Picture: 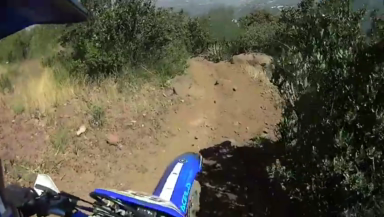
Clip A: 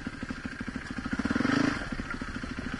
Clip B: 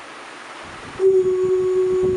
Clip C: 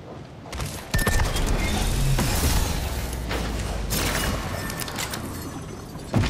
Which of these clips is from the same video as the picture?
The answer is A